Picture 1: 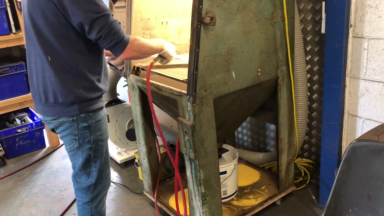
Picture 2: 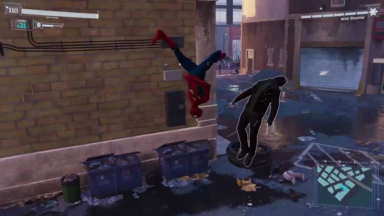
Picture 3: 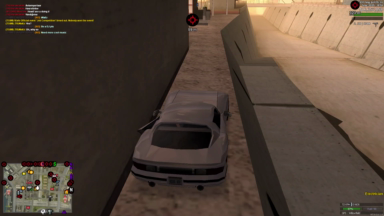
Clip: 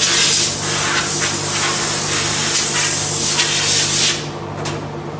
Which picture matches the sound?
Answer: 1